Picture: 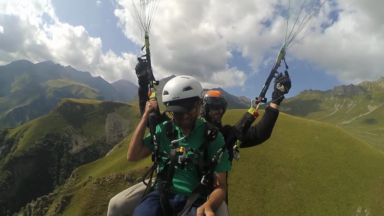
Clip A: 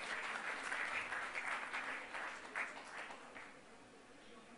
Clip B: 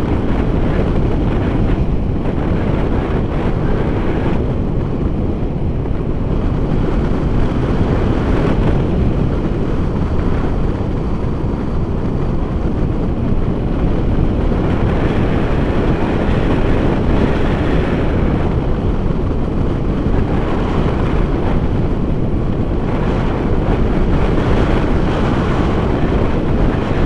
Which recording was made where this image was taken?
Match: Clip B